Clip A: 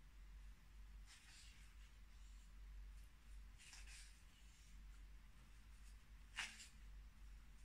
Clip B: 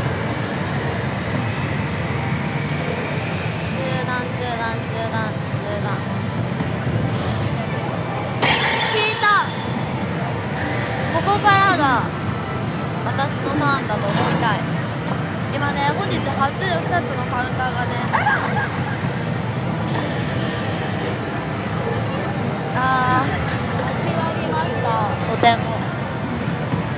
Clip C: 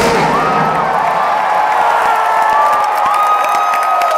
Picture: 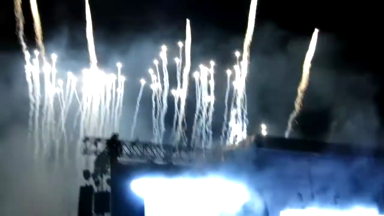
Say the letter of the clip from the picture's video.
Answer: C